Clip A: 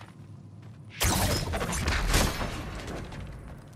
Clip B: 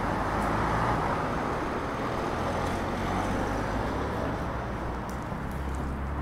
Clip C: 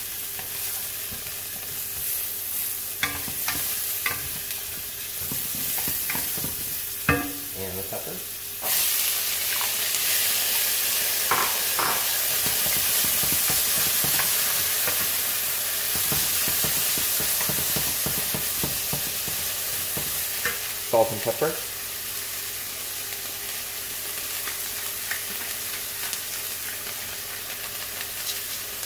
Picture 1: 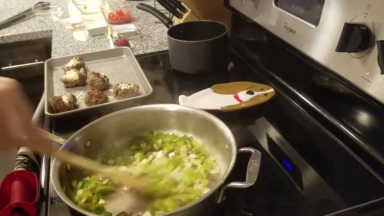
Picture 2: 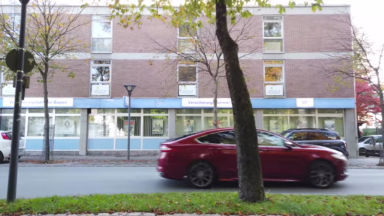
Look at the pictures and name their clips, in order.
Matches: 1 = C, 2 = B